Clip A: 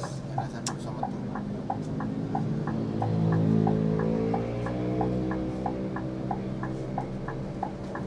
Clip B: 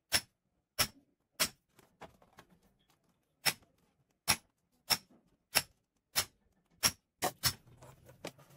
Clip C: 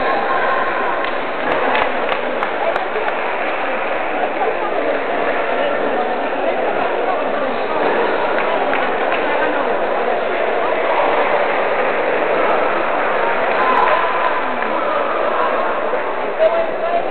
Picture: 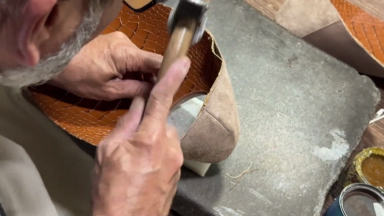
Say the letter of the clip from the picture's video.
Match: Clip B